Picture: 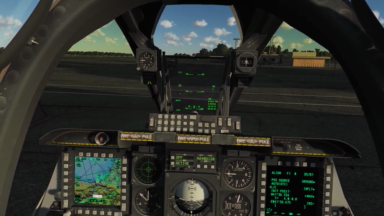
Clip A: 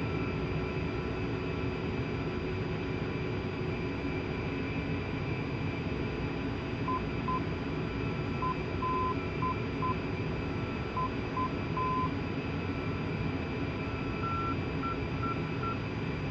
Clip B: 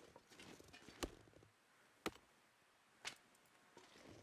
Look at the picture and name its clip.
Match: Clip A